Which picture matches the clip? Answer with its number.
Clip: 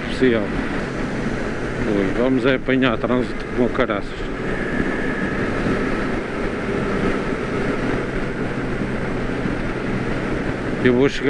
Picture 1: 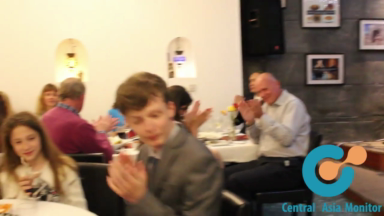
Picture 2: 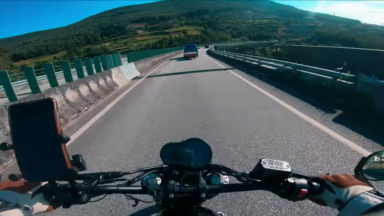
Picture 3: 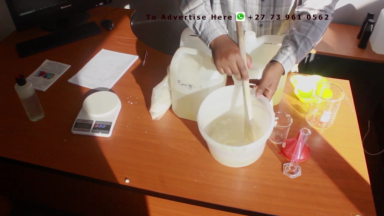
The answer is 2